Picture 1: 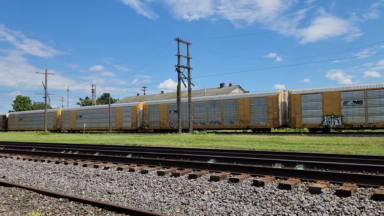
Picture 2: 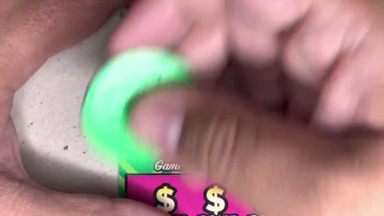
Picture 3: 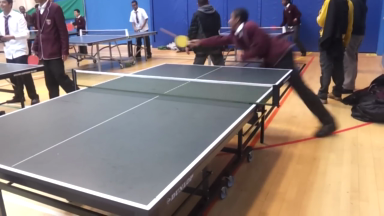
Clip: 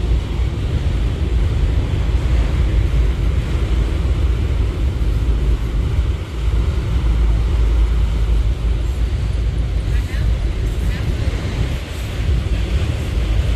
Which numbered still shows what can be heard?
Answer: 1